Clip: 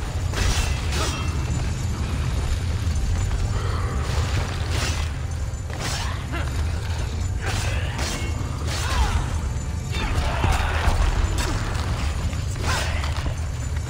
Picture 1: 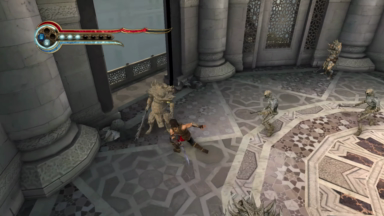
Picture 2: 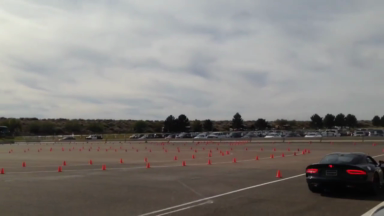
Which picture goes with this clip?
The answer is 1